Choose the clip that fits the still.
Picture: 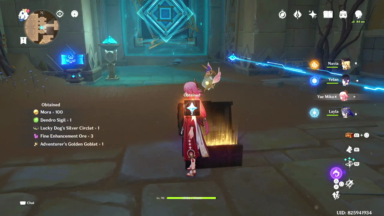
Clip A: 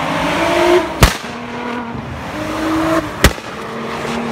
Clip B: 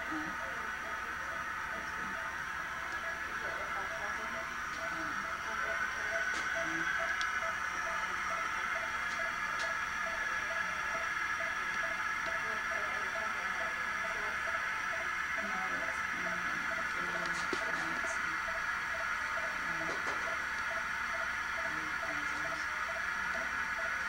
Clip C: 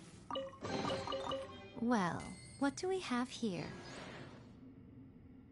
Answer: C